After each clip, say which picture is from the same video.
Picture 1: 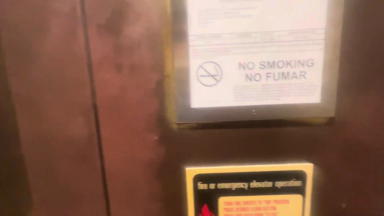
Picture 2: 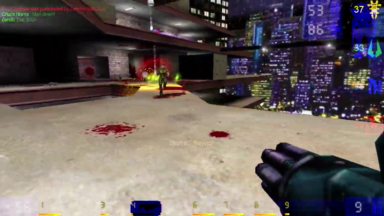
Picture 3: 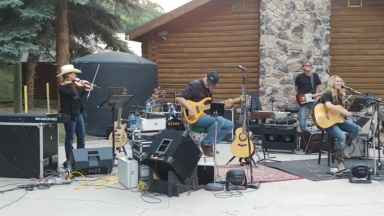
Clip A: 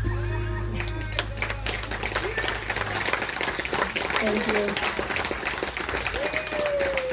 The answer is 3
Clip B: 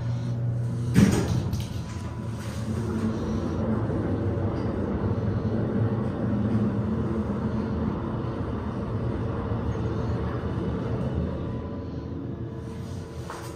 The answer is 1